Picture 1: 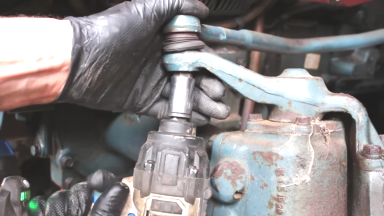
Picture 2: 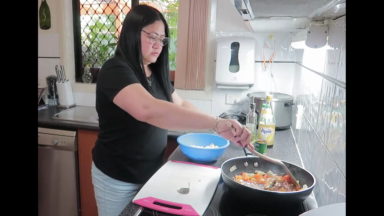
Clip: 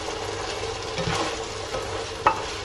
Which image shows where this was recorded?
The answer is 2